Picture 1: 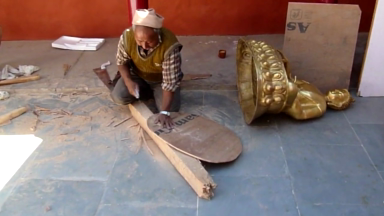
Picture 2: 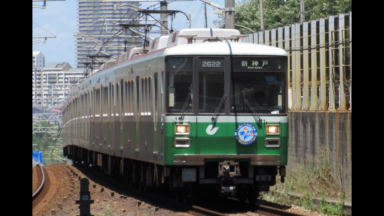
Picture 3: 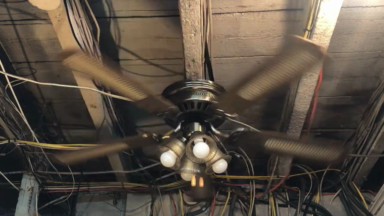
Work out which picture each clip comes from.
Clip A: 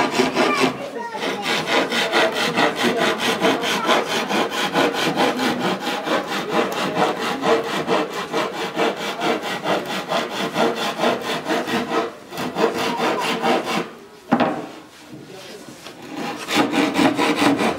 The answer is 1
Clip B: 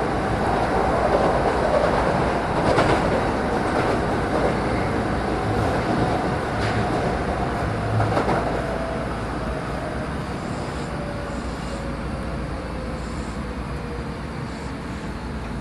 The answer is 2